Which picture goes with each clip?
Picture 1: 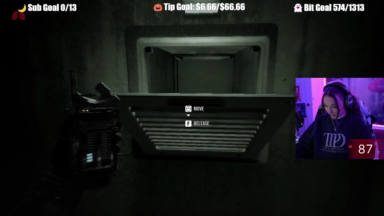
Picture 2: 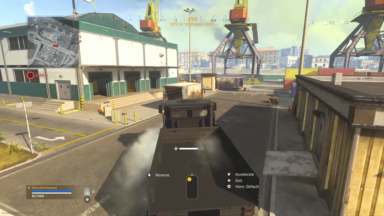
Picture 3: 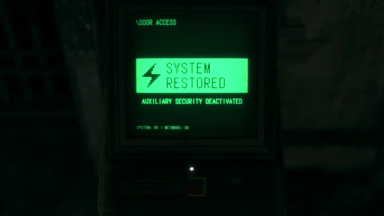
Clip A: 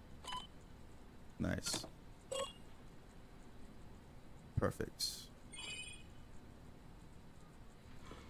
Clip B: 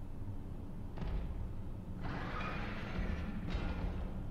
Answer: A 3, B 1